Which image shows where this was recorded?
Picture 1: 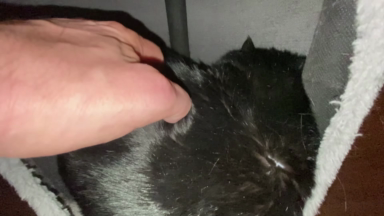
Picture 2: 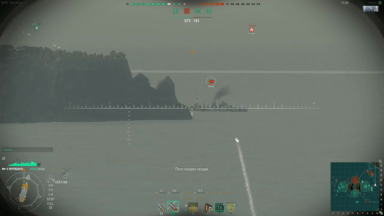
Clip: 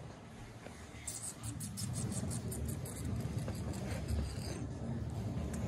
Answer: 1